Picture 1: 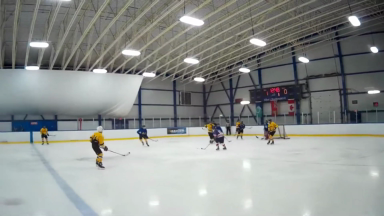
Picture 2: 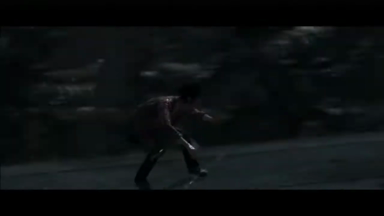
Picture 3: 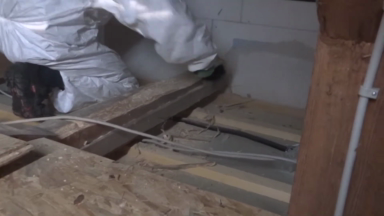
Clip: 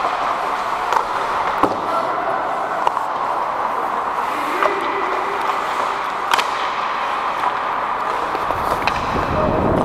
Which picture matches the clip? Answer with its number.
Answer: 1